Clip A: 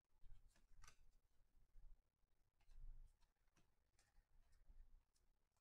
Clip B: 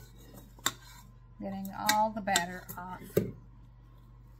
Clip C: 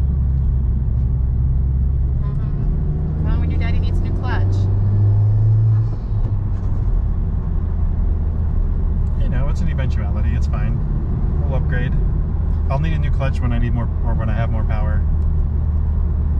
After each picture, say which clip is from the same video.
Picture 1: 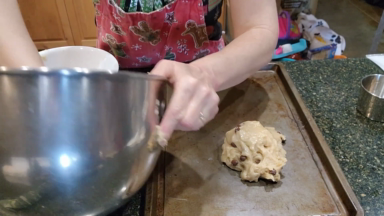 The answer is B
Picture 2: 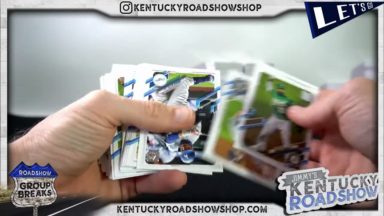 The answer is A